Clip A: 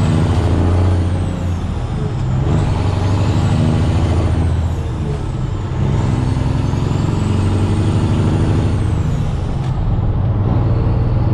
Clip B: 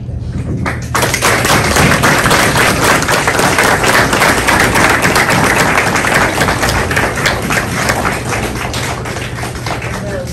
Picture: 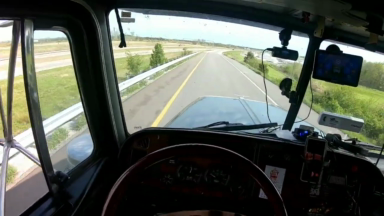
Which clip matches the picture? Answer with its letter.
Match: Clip A